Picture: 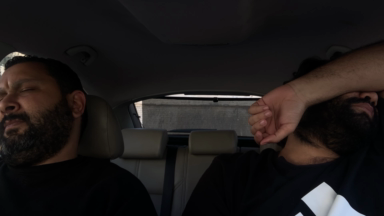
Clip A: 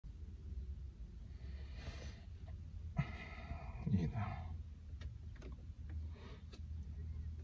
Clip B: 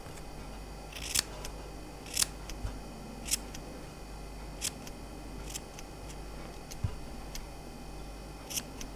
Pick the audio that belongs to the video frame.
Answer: A